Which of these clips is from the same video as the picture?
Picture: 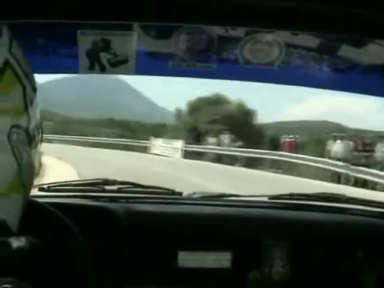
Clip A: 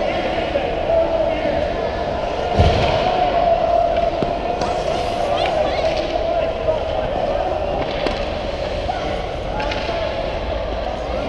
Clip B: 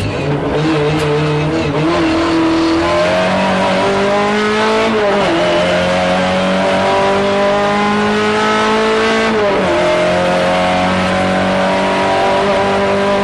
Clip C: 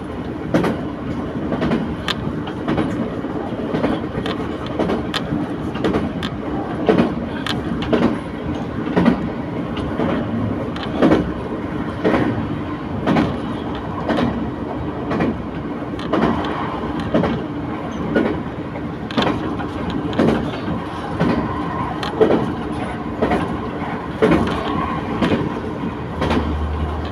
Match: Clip B